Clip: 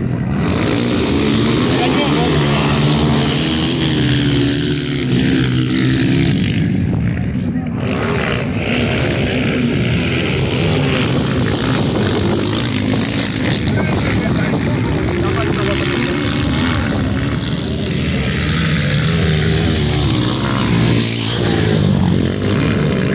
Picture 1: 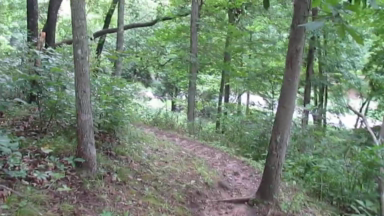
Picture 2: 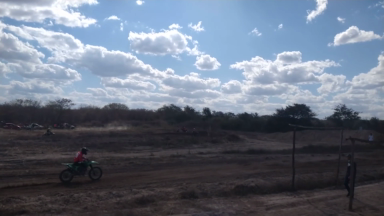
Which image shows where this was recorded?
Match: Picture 2